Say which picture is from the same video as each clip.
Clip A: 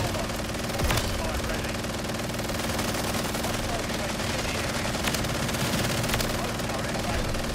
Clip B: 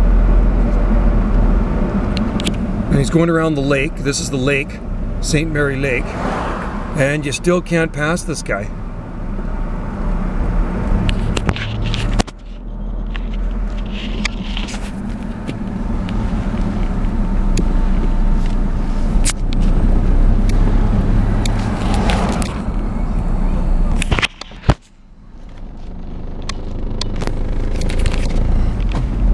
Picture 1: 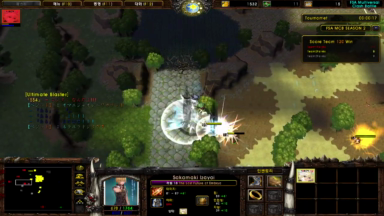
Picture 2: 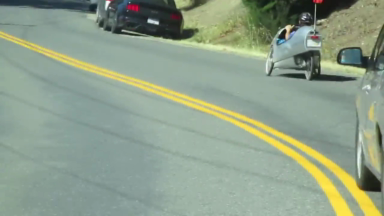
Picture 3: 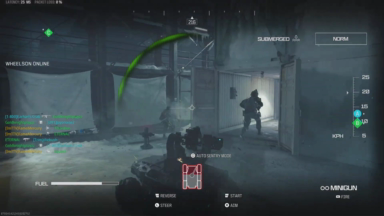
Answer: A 3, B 2